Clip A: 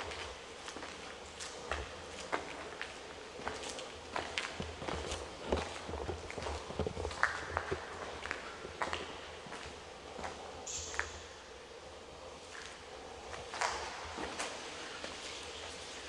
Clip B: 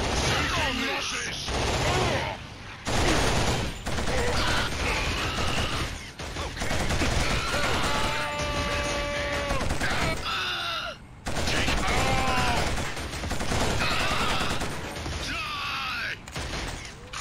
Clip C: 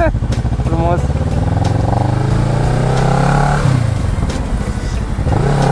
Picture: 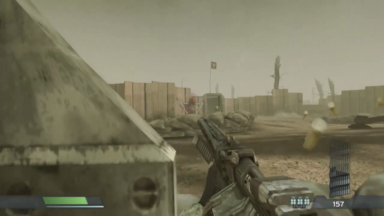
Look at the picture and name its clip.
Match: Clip B